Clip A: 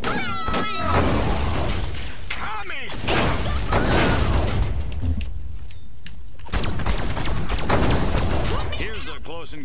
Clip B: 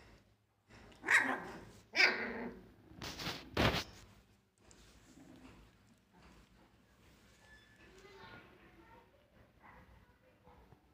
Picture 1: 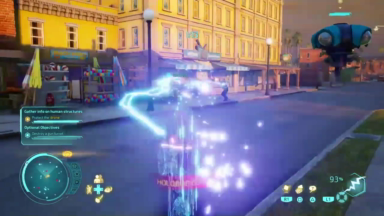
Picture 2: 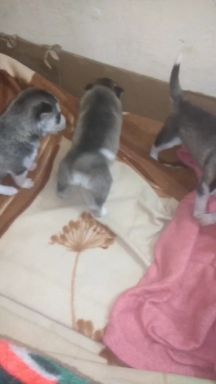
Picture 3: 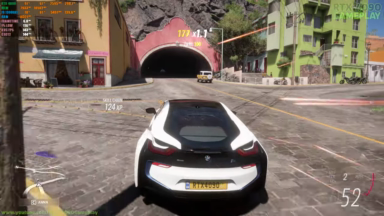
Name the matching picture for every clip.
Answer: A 1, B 2